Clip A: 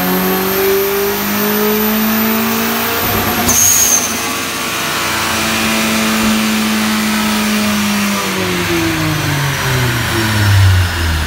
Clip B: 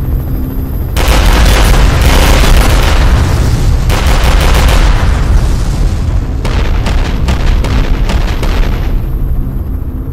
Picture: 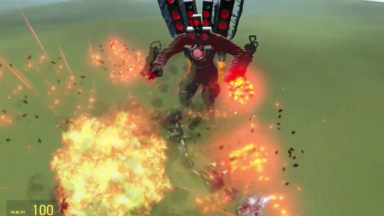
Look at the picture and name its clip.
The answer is B